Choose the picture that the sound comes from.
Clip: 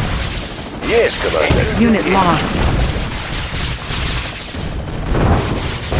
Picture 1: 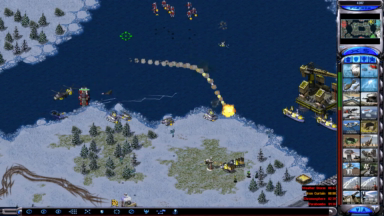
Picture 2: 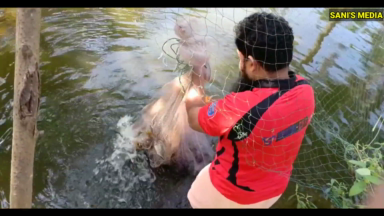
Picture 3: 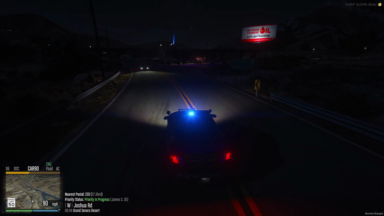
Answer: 1